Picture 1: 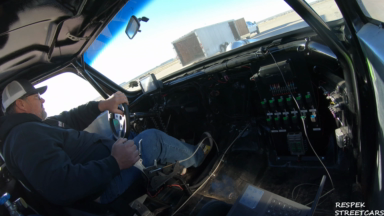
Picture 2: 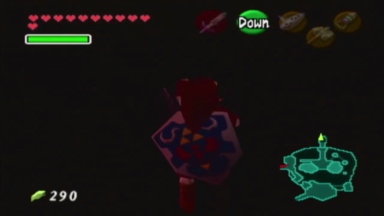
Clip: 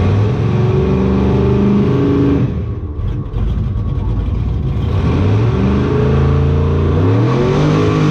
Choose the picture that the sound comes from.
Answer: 1